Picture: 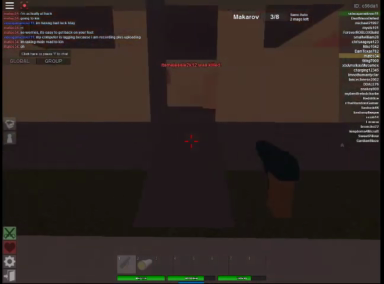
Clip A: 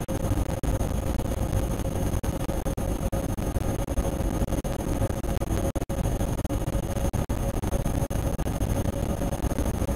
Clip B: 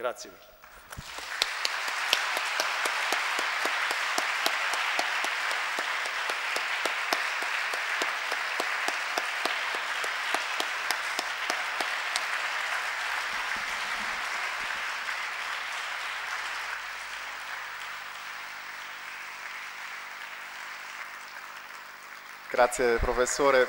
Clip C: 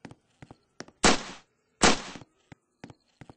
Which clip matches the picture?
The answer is C